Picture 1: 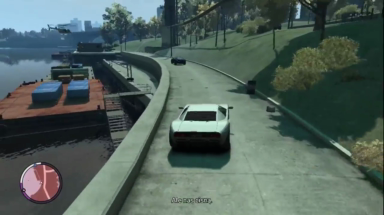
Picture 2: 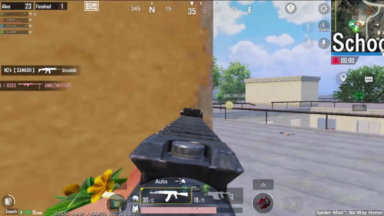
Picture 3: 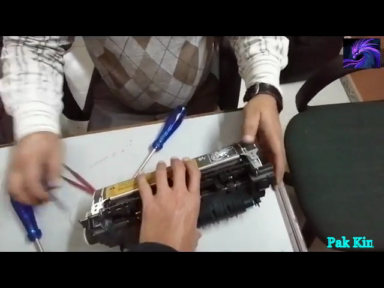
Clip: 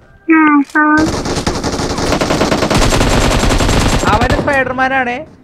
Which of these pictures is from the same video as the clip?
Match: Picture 2